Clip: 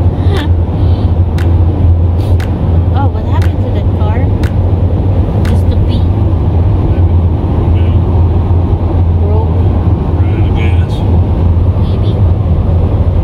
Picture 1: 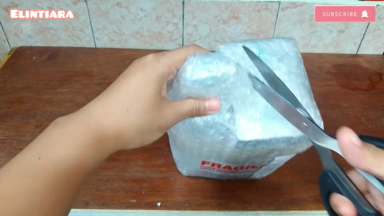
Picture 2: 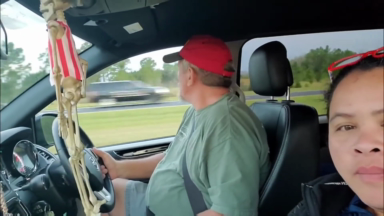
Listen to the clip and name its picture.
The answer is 2